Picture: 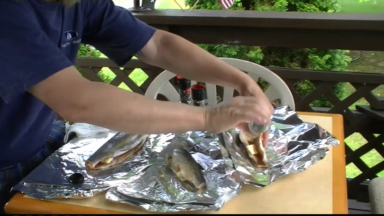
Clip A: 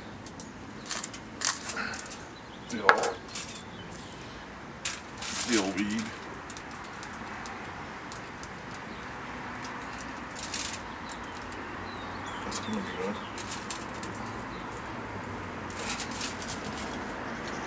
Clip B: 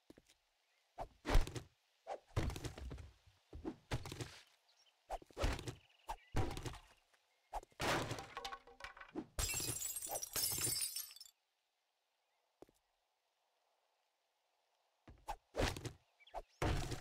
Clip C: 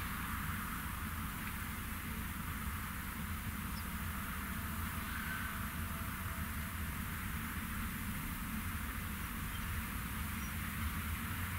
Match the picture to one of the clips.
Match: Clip A